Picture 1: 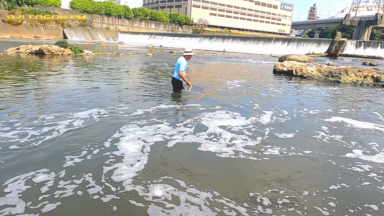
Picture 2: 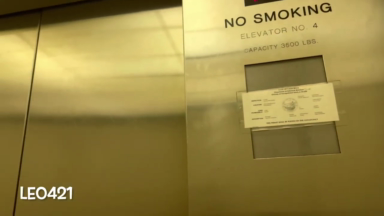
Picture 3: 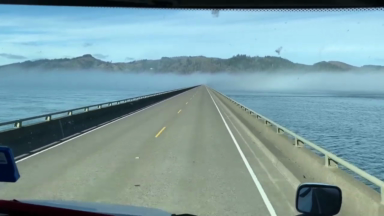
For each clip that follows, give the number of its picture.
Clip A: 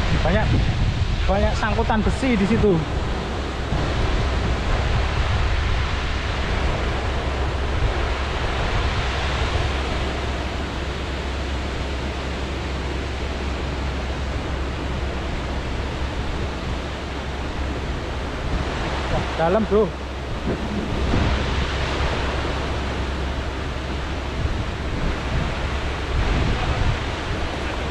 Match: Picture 1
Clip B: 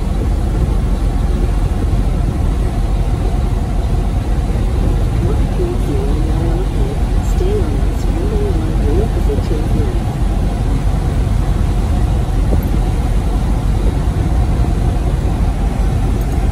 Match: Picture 3